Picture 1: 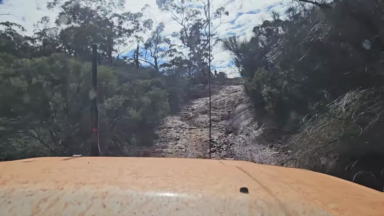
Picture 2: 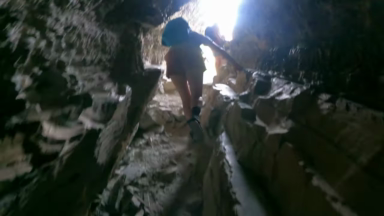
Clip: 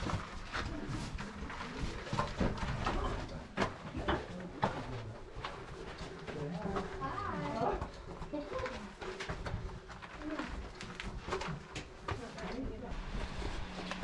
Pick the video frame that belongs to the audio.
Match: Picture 2